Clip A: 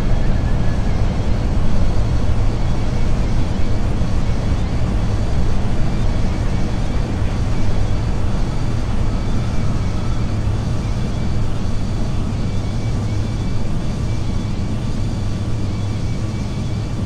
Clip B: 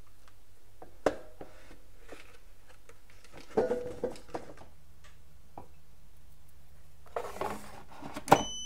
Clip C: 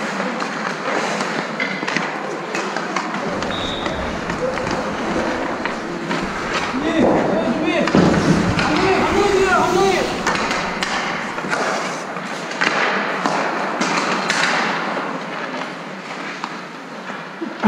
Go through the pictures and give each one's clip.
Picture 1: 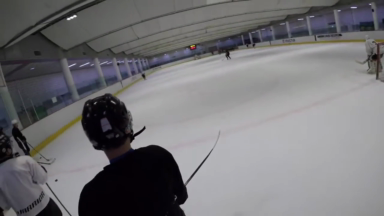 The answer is C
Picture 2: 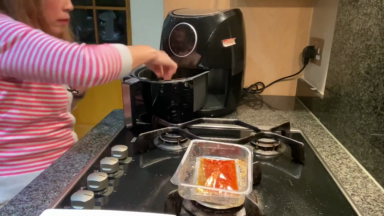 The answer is B